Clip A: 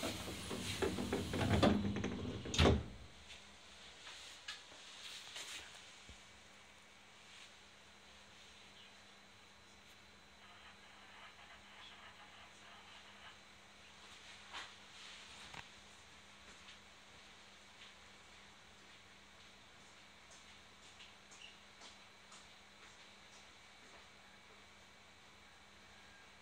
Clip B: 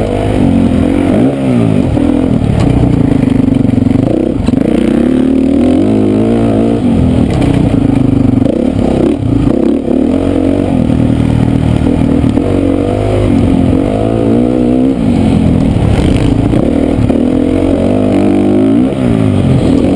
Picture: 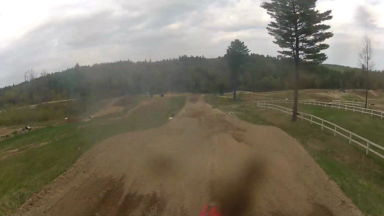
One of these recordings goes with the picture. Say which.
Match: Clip B